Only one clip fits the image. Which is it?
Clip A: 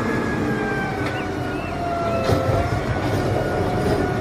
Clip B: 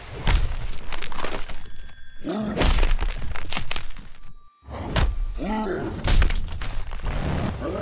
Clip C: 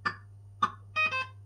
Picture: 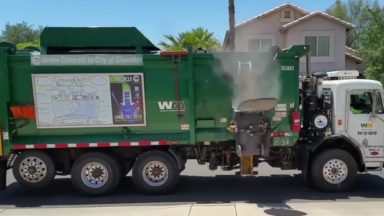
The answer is A